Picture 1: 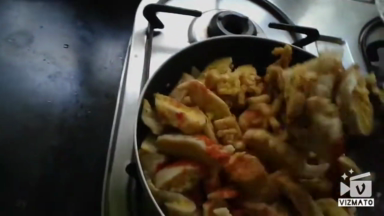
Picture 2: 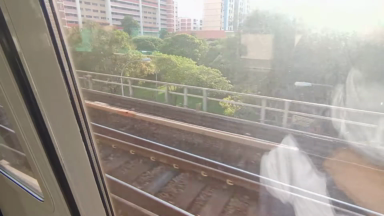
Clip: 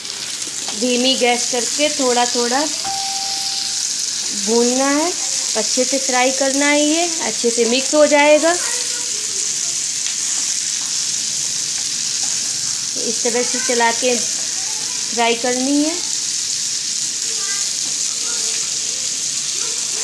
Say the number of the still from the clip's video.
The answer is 1